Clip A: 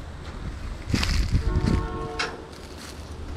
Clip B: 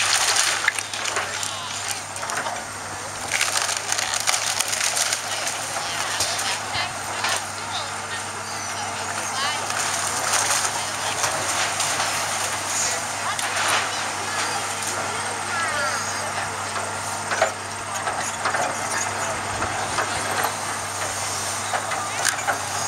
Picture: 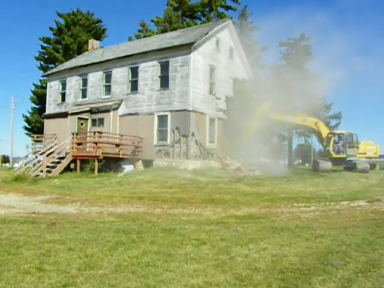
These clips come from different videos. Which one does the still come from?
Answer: B